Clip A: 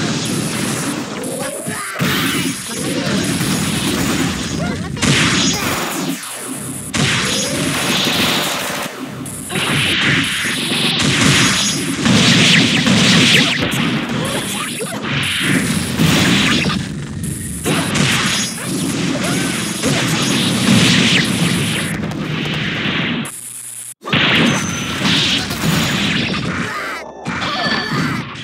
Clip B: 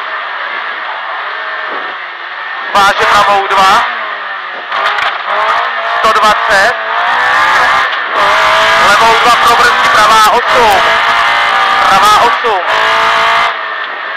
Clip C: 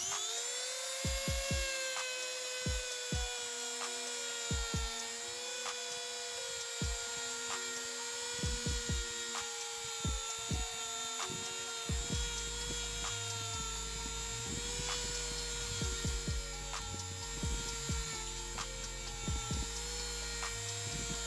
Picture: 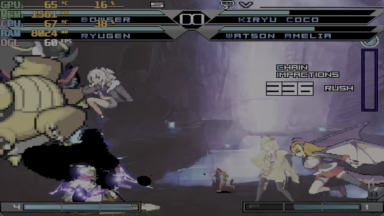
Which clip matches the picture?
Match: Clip A